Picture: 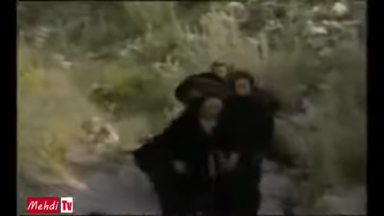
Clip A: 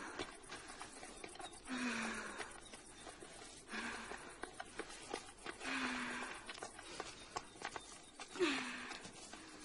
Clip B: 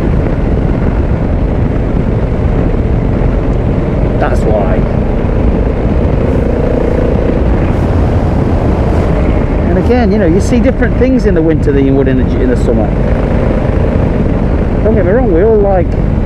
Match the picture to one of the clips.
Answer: A